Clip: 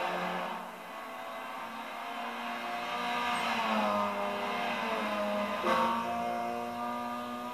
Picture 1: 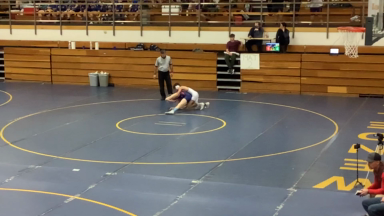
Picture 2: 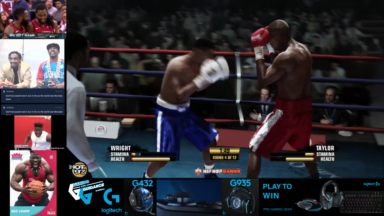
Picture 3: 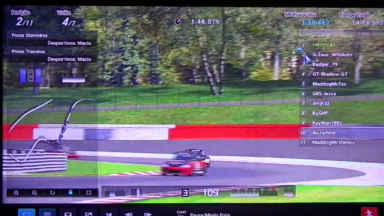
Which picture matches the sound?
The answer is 3